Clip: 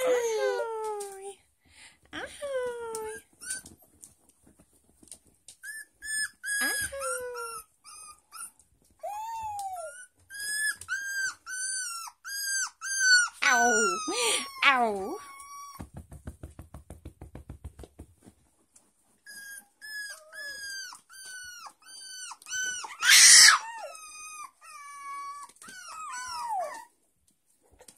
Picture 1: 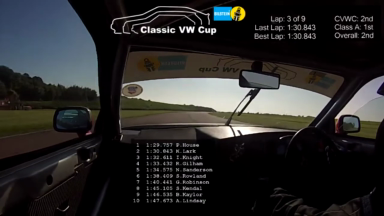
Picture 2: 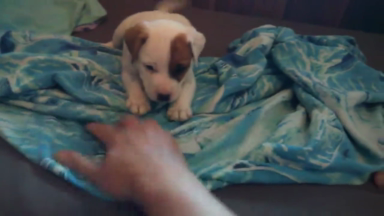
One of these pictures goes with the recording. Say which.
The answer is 2